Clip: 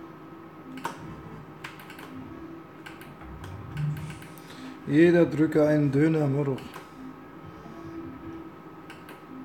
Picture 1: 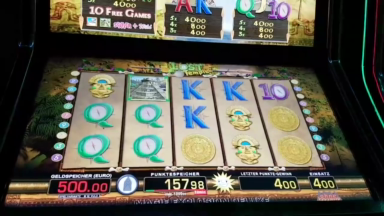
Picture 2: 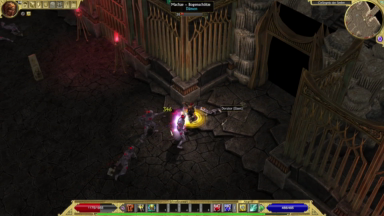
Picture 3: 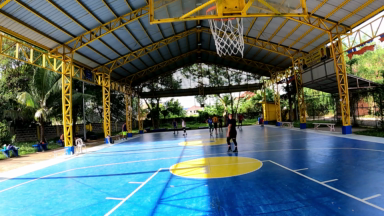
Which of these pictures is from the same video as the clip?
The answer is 1